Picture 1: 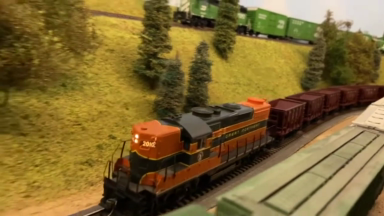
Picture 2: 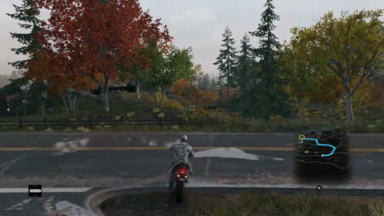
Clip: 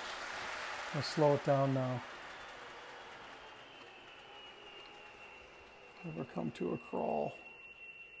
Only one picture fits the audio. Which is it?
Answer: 1